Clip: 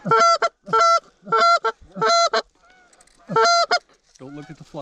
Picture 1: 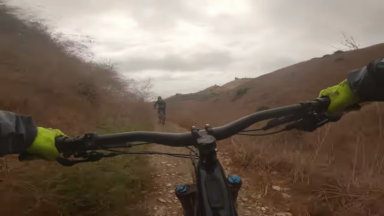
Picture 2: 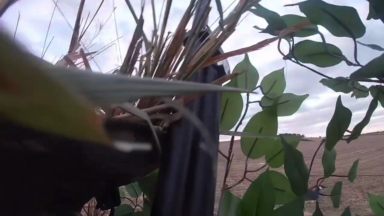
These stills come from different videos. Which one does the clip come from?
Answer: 2